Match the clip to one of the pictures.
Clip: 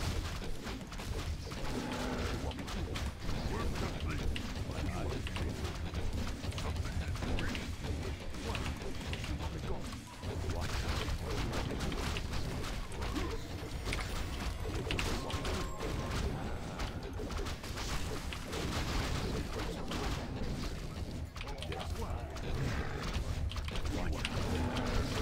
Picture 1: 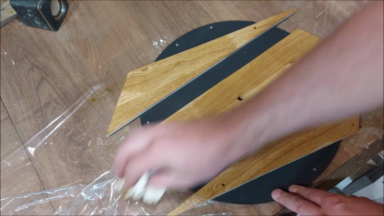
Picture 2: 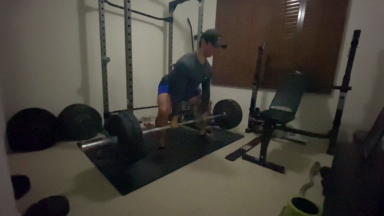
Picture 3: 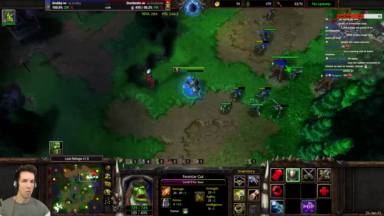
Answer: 3